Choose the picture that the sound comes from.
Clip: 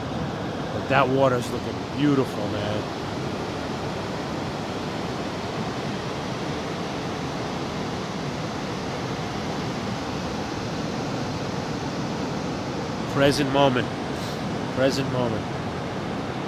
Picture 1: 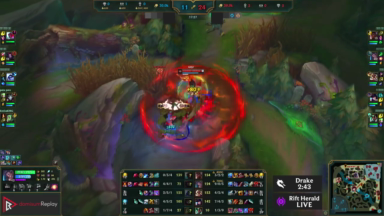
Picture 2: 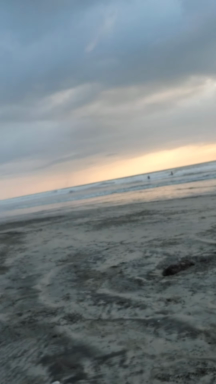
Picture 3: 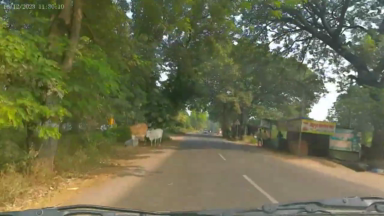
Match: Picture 2